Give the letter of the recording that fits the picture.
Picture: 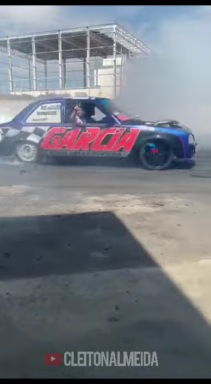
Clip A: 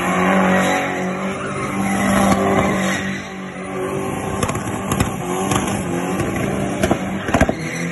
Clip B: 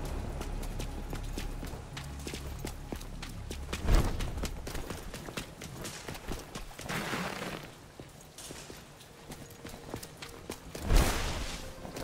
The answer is A